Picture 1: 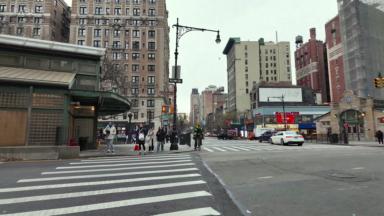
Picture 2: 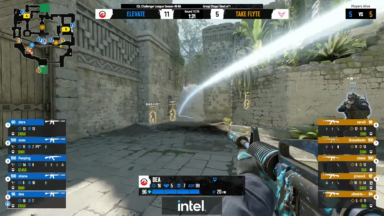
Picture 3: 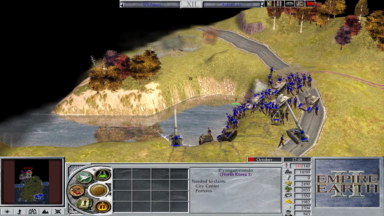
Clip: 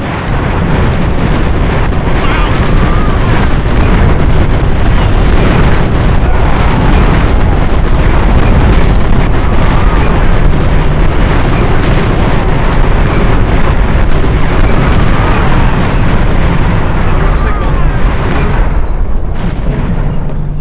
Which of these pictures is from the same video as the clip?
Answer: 3